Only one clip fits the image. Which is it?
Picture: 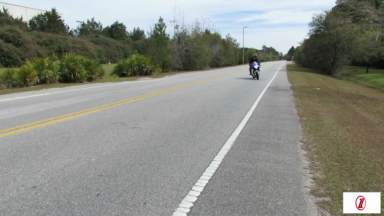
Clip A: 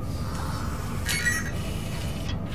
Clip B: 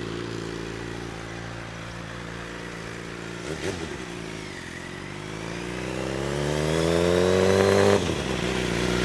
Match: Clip B